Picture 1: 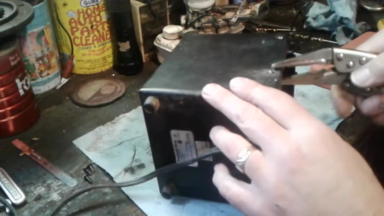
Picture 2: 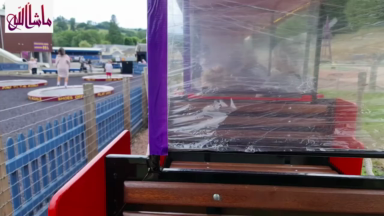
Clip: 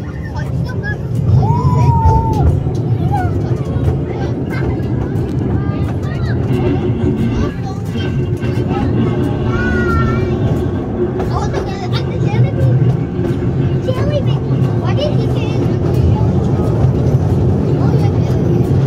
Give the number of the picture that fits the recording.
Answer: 2